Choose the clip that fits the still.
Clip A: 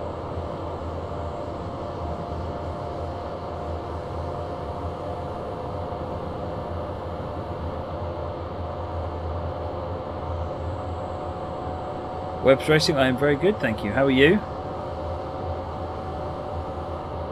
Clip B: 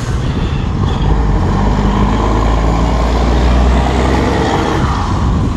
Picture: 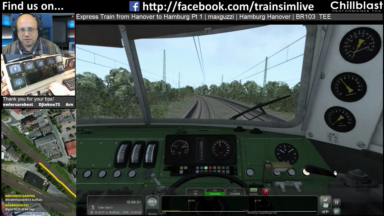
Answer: A